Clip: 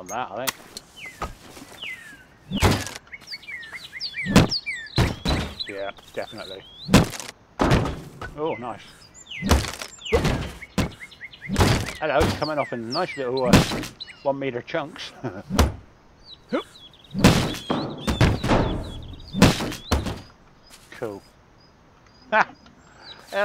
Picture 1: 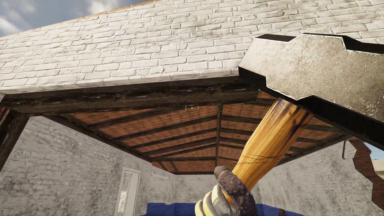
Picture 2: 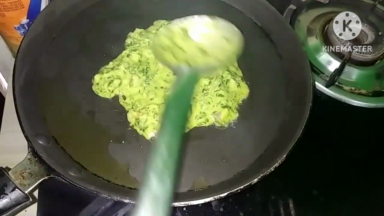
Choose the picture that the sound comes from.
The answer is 1